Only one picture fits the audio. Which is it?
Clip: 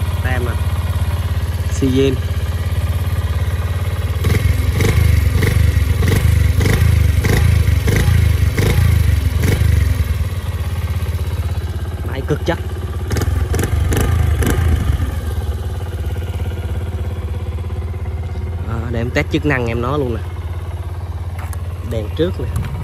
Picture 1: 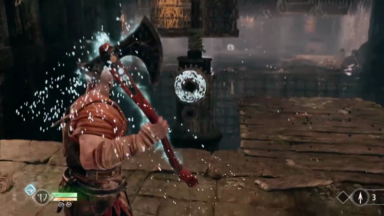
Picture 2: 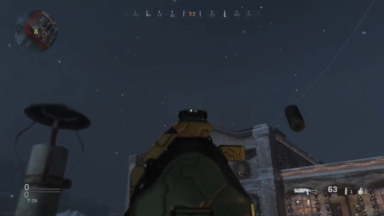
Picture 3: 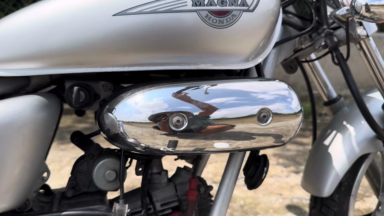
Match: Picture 3